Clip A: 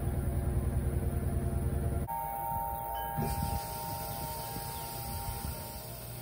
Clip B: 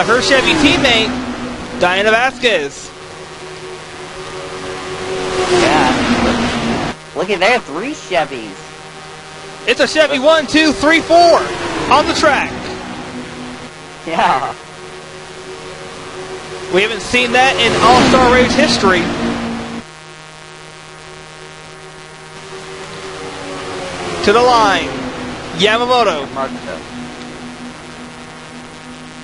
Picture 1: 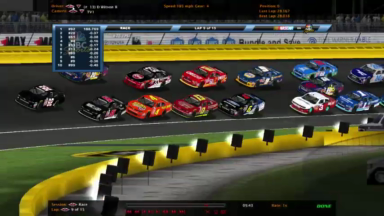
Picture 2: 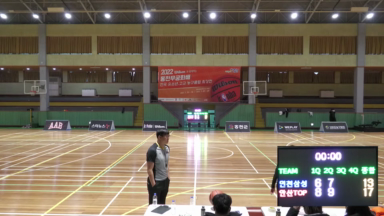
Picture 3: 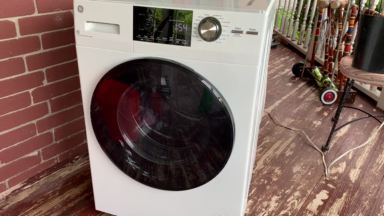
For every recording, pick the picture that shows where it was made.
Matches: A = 3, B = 1